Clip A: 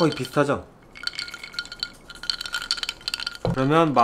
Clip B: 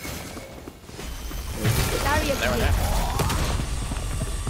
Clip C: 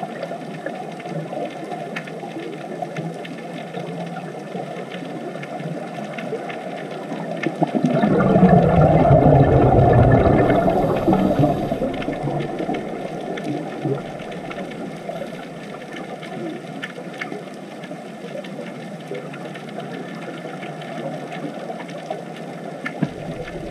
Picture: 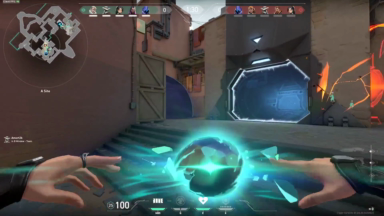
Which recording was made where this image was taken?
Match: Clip B